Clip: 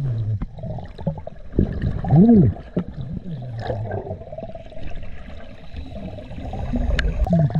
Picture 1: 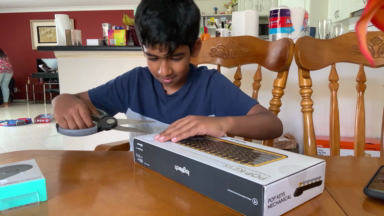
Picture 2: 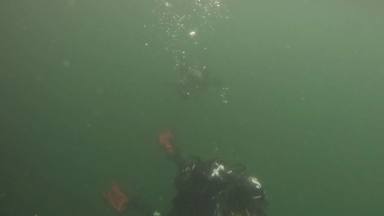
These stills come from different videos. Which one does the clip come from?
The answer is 2